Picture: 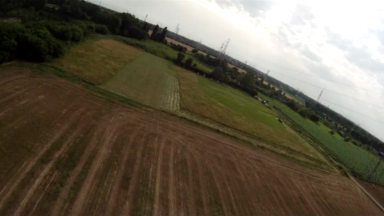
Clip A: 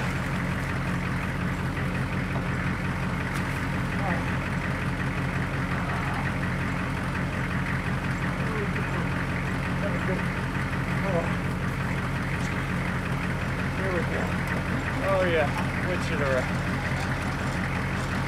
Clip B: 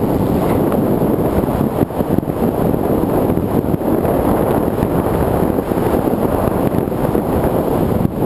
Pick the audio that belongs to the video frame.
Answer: B